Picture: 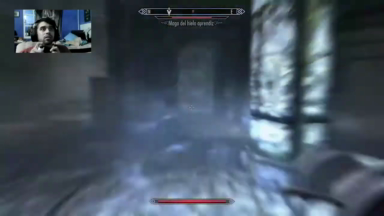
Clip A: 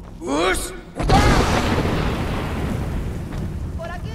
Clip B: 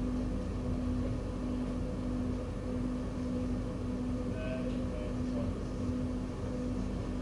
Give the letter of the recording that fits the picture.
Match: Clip A